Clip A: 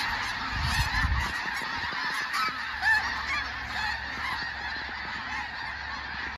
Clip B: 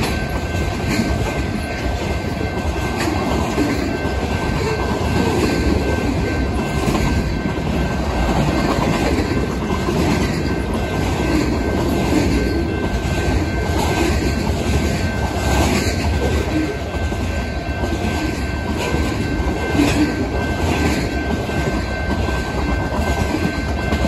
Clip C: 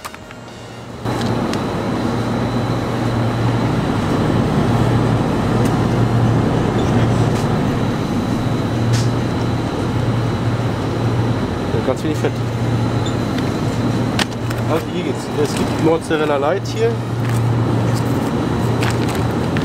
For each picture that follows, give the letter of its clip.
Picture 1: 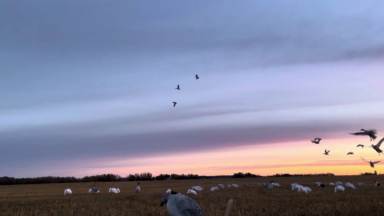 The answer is A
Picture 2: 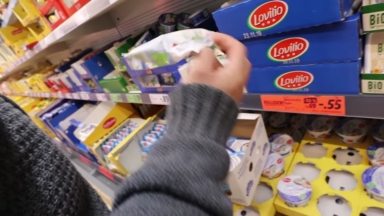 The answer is C